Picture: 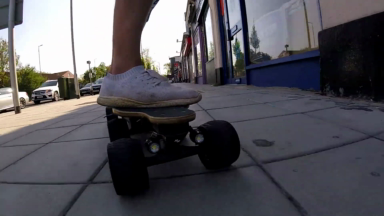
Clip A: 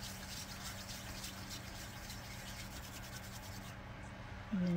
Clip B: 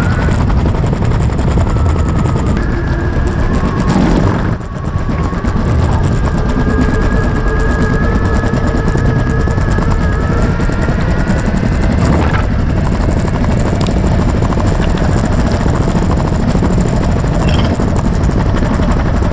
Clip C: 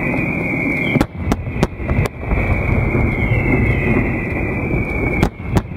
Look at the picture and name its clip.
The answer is B